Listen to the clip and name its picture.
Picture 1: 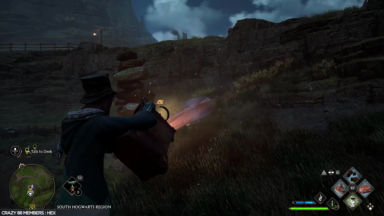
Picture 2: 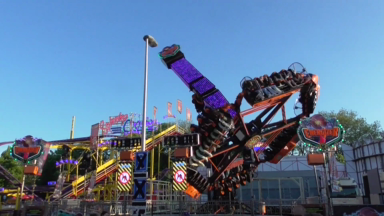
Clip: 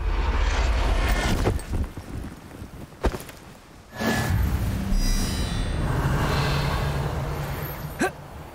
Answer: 1